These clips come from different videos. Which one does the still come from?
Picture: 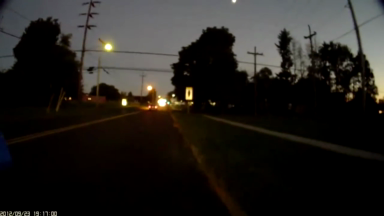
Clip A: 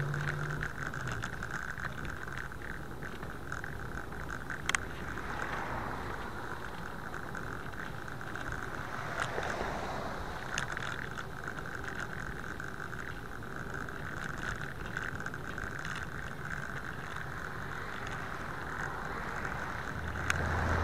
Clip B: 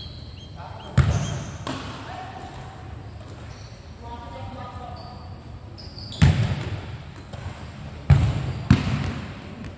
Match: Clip A